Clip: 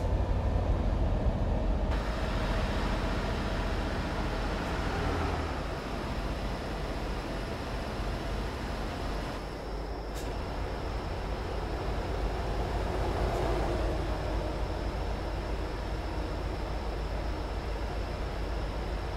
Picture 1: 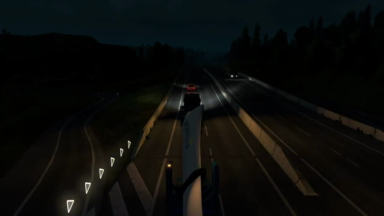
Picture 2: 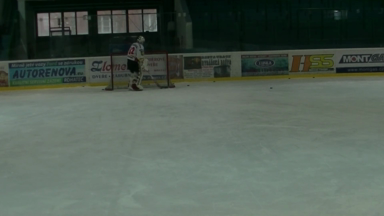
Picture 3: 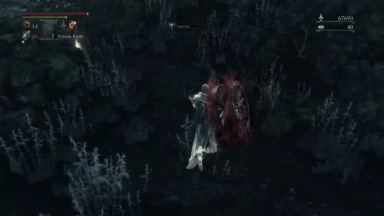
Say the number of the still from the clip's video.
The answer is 1